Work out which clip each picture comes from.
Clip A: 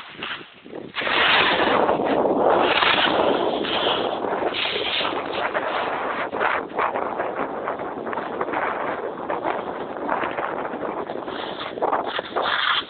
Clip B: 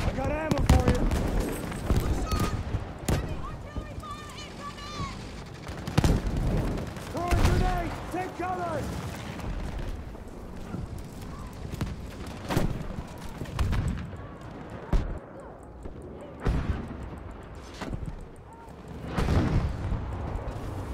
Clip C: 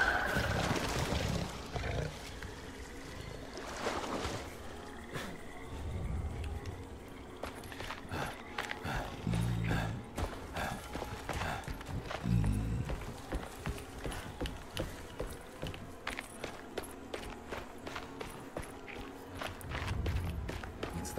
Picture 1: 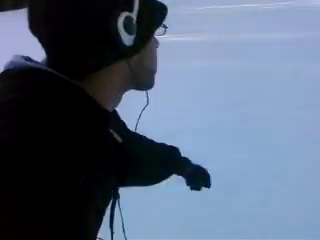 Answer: A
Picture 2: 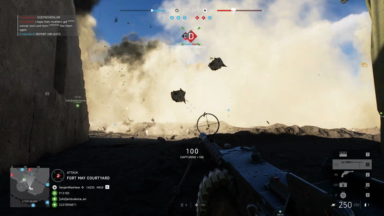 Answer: B